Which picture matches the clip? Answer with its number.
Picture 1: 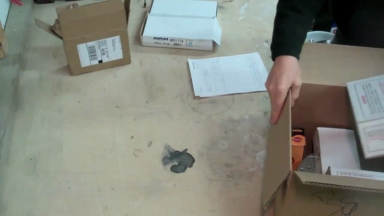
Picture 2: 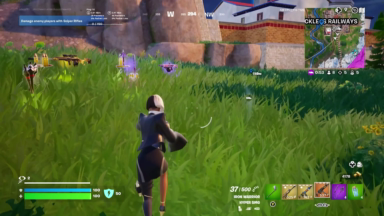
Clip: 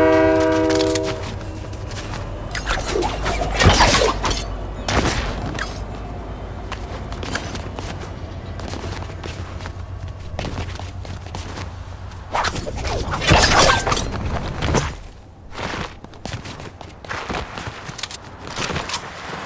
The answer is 2